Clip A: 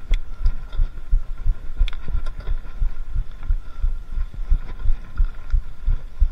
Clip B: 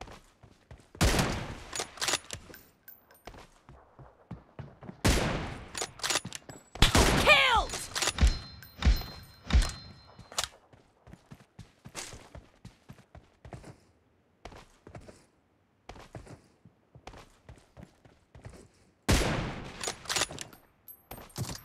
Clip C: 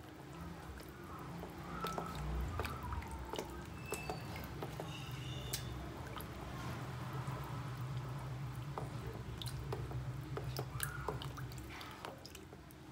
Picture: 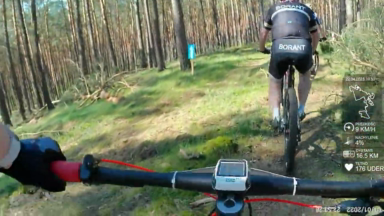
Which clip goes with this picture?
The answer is A